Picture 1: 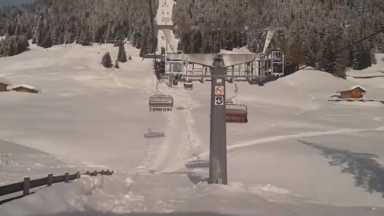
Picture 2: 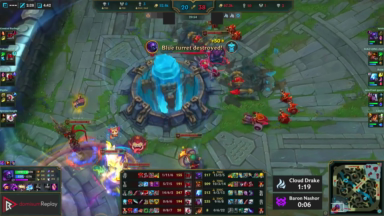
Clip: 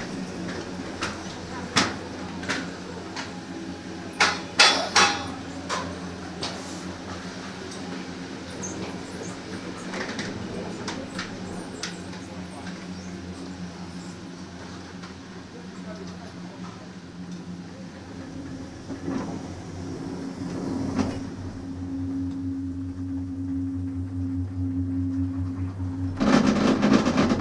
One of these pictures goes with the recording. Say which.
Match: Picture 1